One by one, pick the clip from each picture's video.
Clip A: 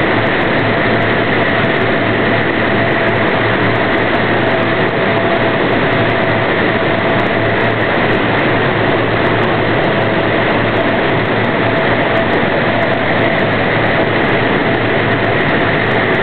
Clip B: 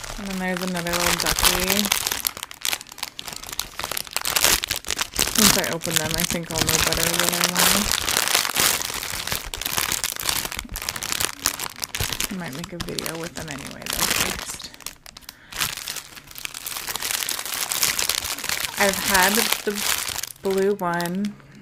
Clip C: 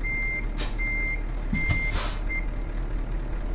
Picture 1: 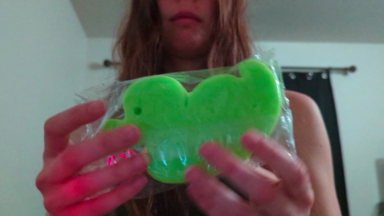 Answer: B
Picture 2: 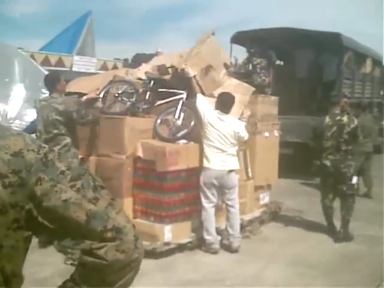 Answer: A